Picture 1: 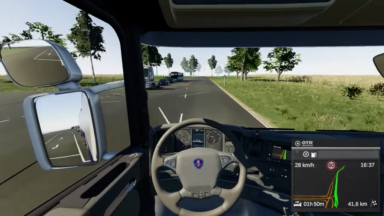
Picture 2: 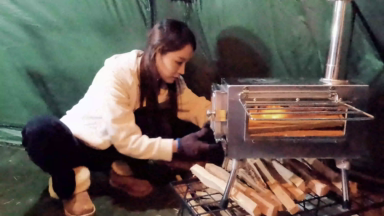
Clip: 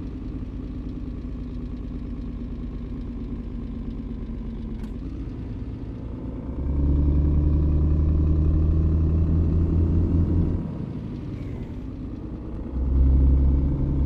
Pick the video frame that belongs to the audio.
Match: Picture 1